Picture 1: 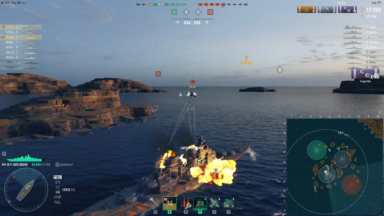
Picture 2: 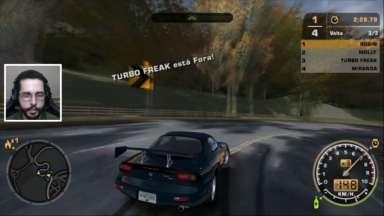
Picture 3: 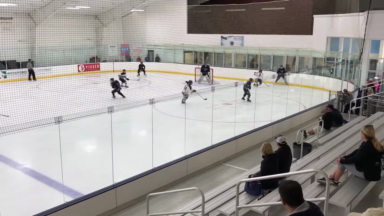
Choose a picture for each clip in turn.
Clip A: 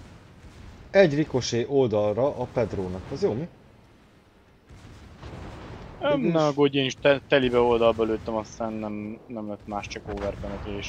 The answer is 1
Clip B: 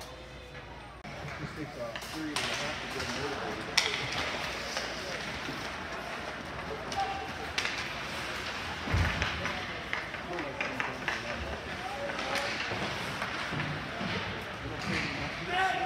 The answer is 3